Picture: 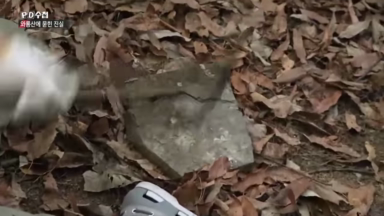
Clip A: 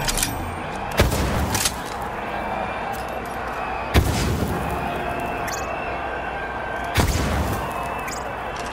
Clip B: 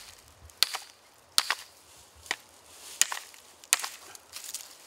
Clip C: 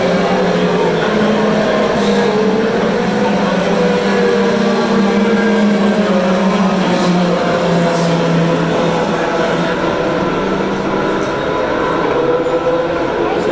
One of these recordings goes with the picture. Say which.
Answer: B